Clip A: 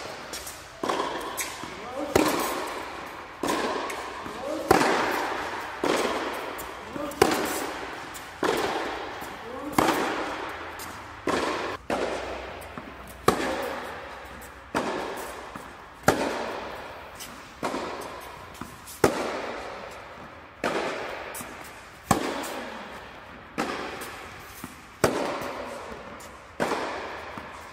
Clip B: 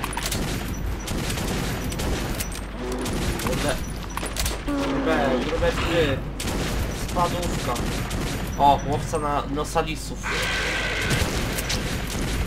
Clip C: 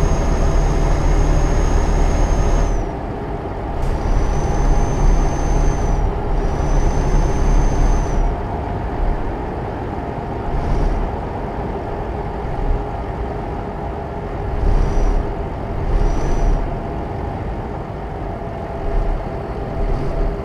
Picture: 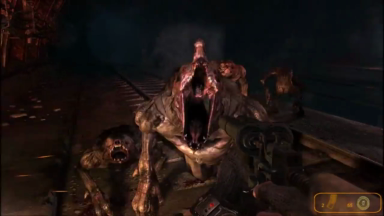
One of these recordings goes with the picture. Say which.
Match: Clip B